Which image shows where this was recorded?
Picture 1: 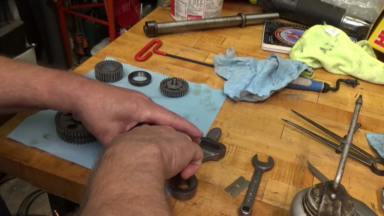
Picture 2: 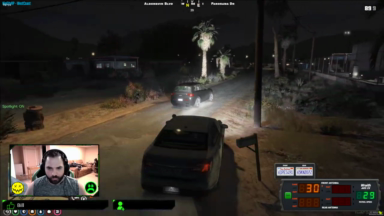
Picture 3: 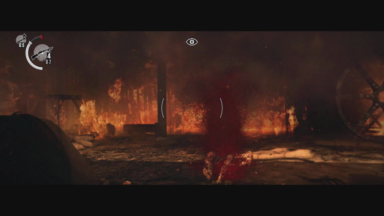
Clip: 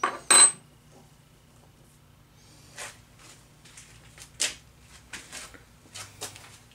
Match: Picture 1